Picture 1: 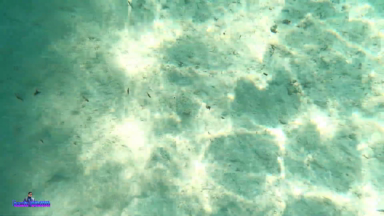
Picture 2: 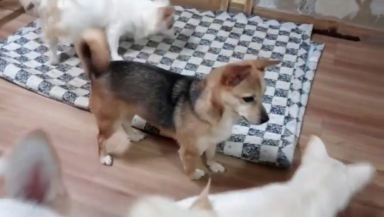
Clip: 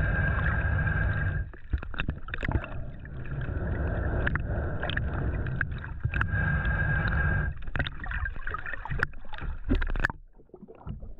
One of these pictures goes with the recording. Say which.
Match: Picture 1